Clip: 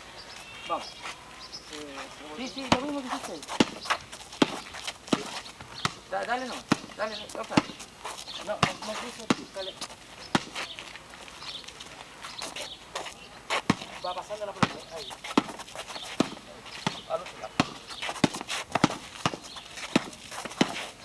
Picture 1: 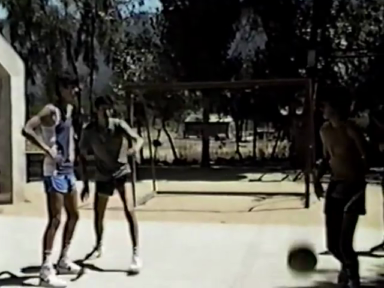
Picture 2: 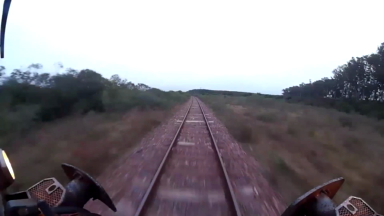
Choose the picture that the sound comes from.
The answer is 1